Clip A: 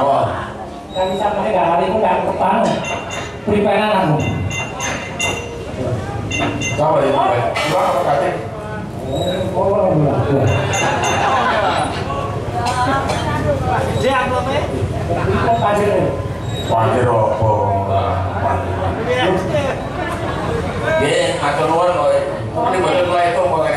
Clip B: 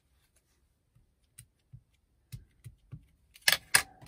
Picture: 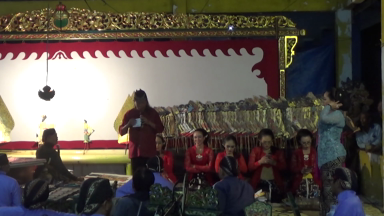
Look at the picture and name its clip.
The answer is A